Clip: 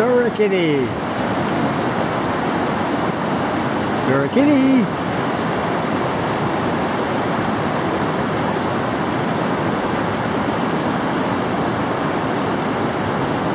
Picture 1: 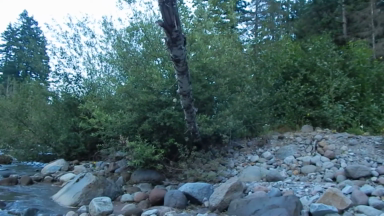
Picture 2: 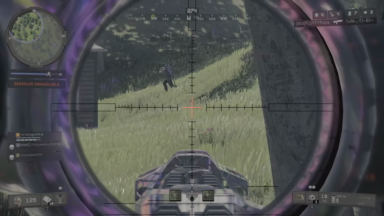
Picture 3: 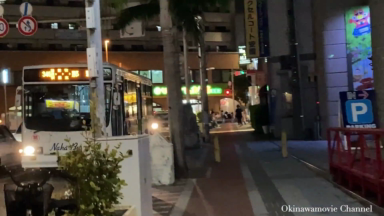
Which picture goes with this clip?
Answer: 1